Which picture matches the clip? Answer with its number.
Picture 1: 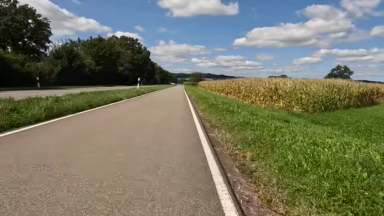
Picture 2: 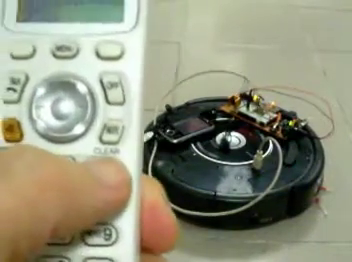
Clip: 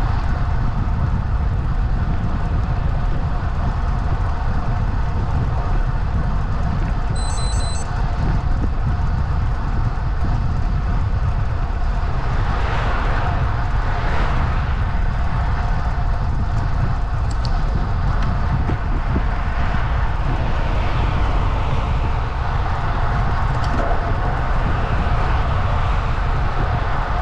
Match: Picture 1